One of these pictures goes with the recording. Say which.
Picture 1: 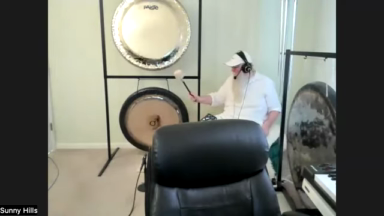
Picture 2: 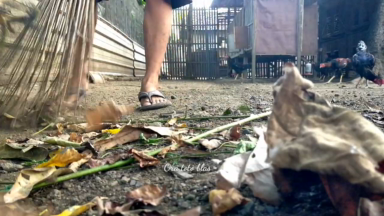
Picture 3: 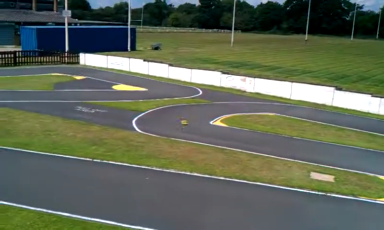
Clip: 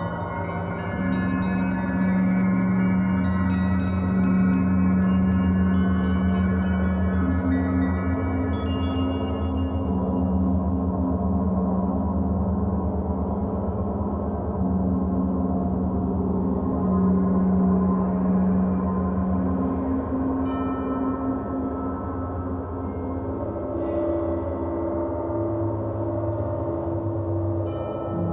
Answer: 1